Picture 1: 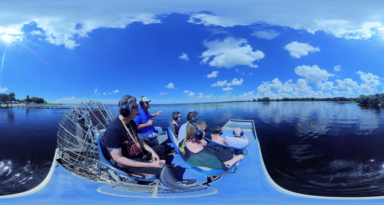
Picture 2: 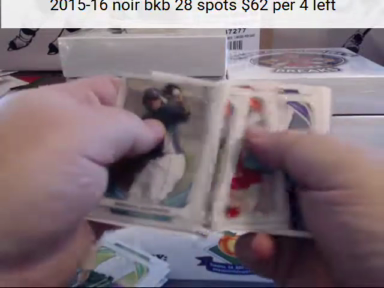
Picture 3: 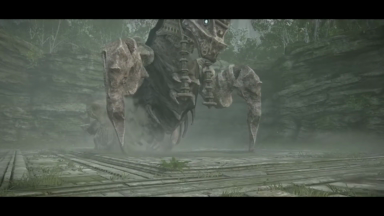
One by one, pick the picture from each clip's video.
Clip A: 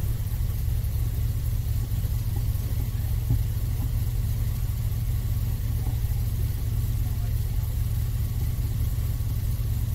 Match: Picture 1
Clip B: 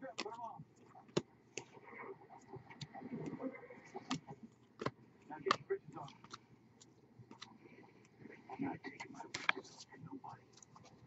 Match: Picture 2